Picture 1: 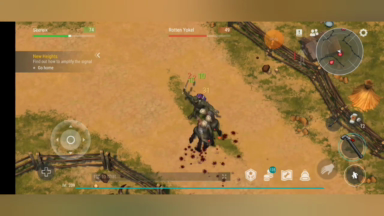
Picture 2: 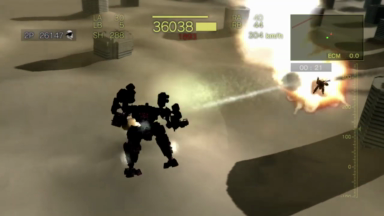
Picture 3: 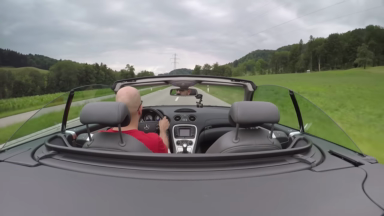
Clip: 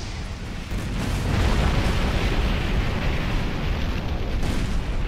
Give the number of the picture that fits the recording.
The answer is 2